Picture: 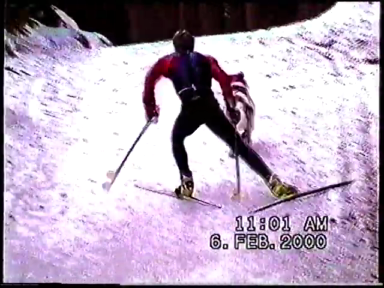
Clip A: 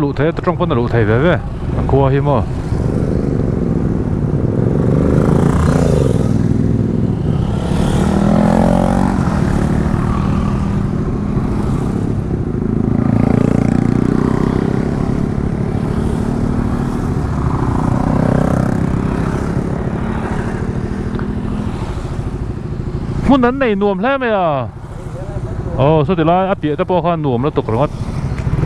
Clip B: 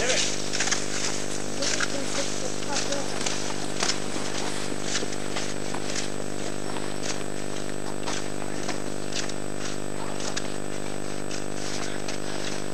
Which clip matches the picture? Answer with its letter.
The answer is B